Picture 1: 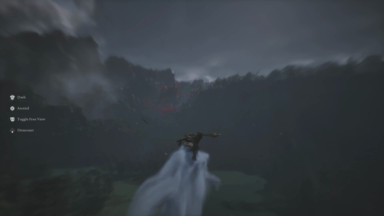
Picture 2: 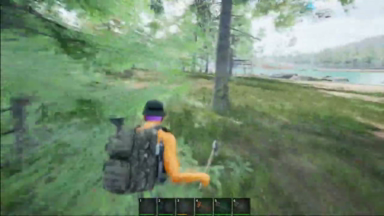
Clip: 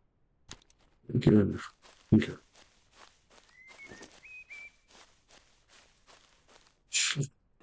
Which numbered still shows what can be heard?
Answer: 2